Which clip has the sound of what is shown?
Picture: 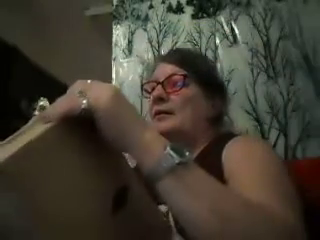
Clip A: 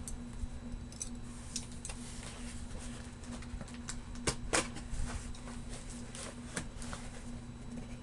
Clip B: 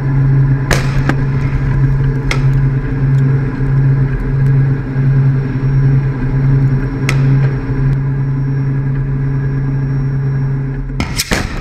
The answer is A